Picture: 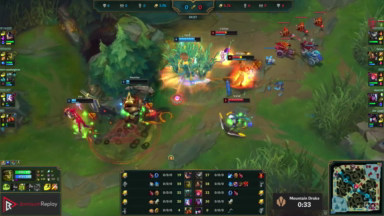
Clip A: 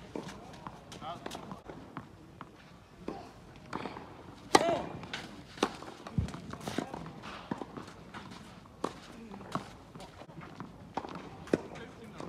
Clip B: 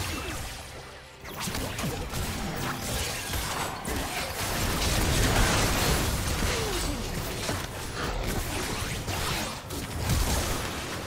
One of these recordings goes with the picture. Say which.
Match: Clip B